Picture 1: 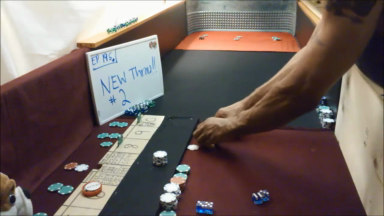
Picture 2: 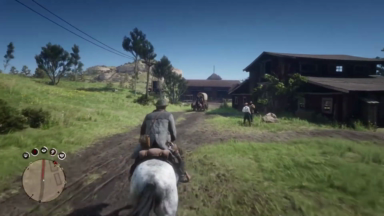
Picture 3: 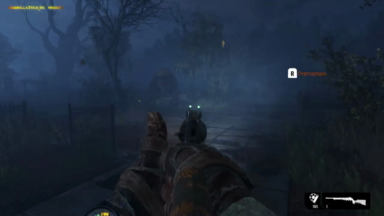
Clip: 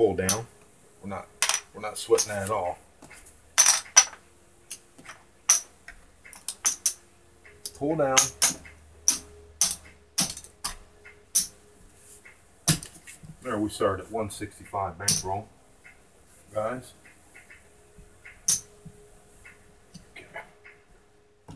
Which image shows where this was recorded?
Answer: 1